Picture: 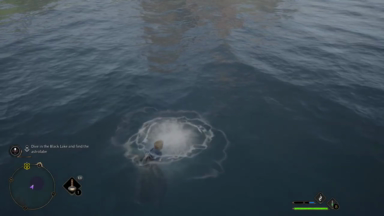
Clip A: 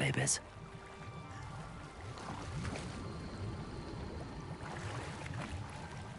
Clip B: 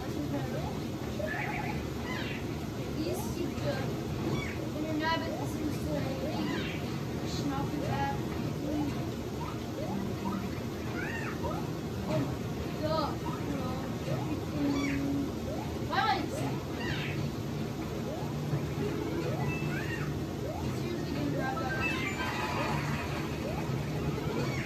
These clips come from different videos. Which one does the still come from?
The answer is A